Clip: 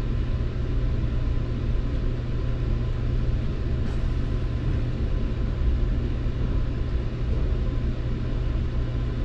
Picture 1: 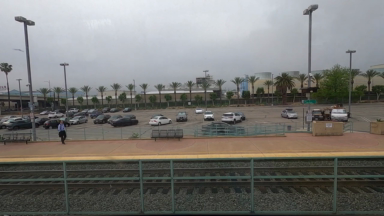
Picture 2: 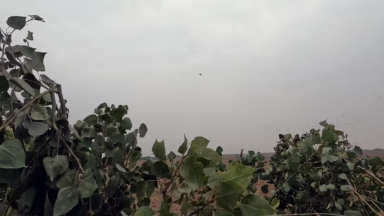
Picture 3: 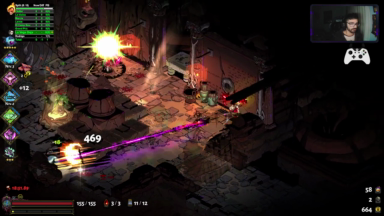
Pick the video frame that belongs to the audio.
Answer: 1